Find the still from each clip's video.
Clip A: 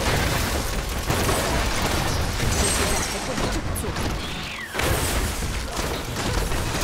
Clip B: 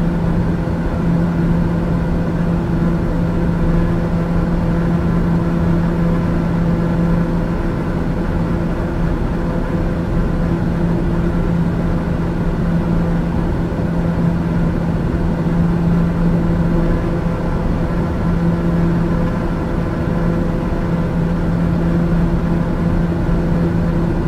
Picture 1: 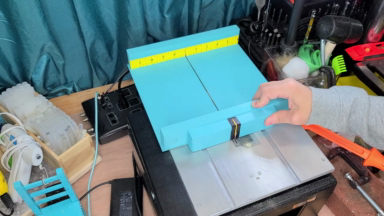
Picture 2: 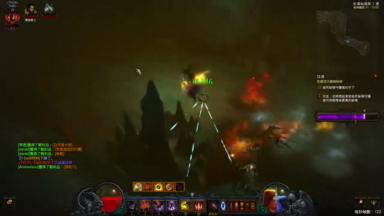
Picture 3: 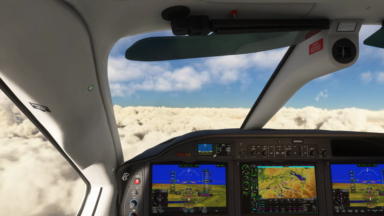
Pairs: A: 2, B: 3